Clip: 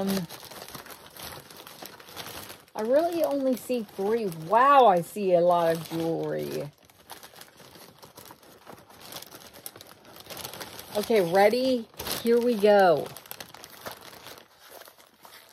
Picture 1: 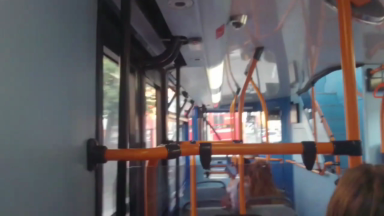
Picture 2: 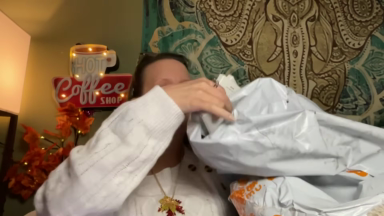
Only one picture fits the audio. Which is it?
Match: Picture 2